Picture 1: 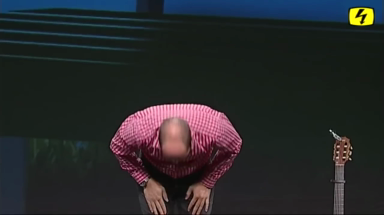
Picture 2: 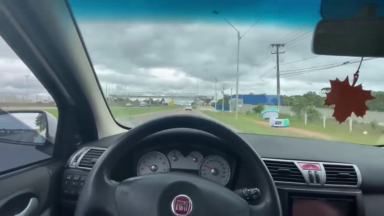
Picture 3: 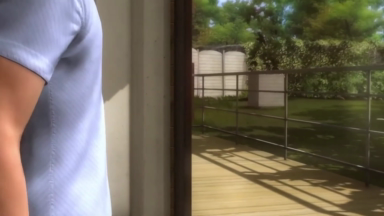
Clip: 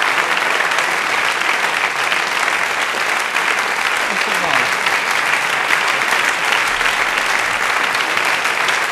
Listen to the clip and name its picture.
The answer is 1